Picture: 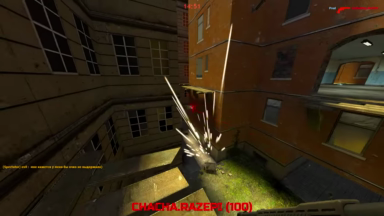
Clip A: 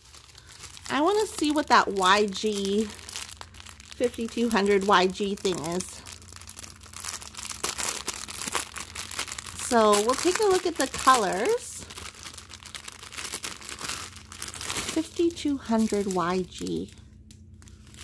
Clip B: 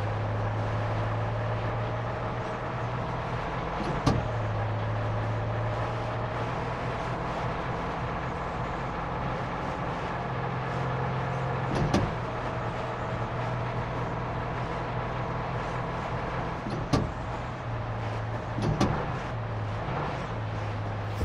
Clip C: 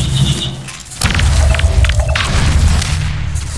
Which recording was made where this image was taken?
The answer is C